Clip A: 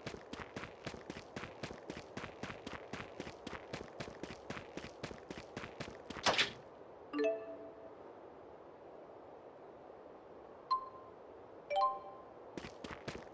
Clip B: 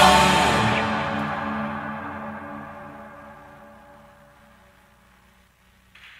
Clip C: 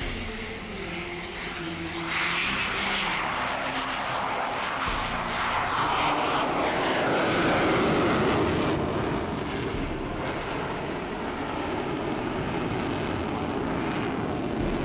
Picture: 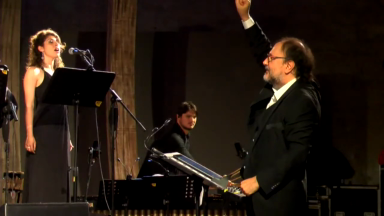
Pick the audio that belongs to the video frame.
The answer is B